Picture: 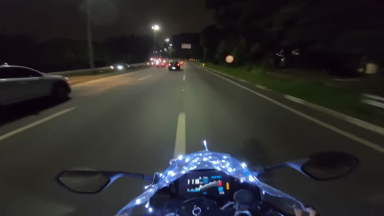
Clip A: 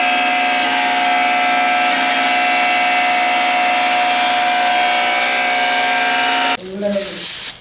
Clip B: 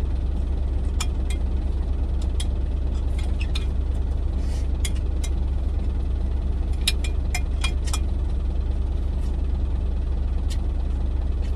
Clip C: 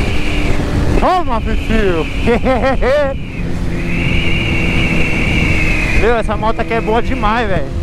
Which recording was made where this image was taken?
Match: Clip C